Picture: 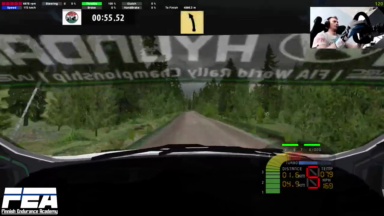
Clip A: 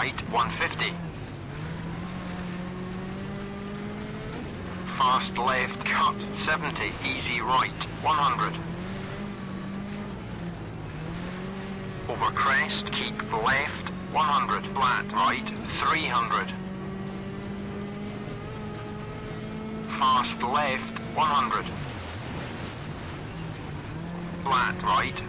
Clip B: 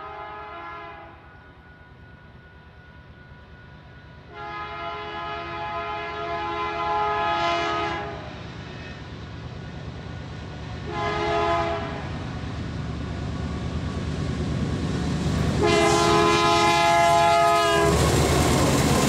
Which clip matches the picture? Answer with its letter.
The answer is A